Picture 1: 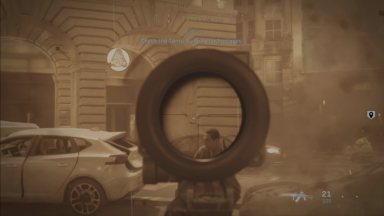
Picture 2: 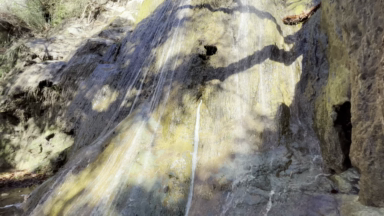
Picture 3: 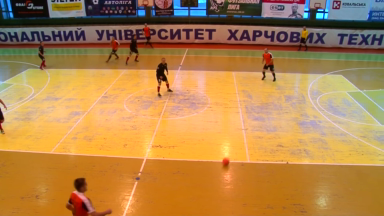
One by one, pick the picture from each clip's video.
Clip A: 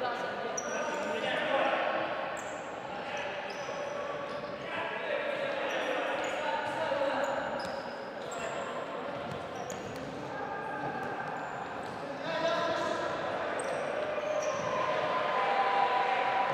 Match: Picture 3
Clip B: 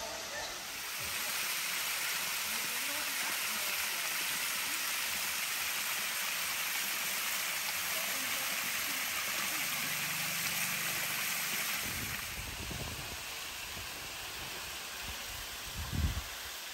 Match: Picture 2